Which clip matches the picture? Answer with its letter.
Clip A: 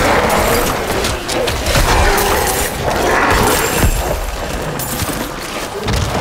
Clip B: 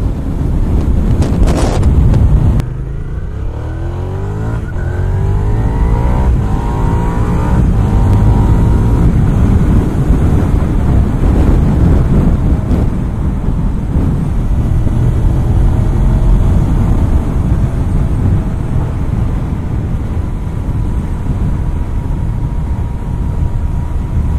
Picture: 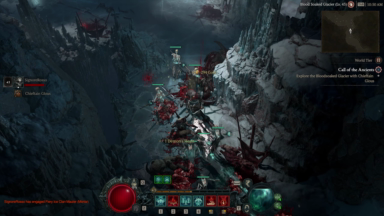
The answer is A